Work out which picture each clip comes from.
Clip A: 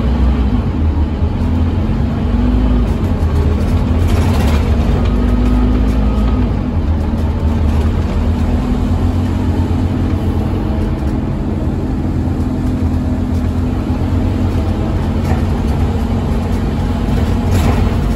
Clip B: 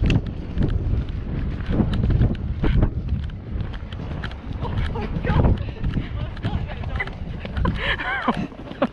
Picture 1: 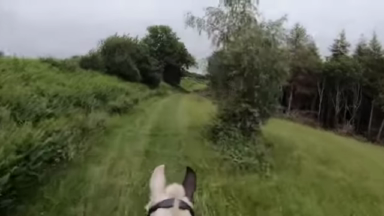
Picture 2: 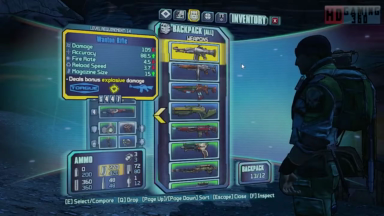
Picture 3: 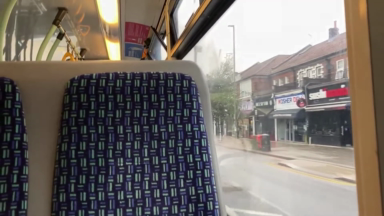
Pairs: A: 3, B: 1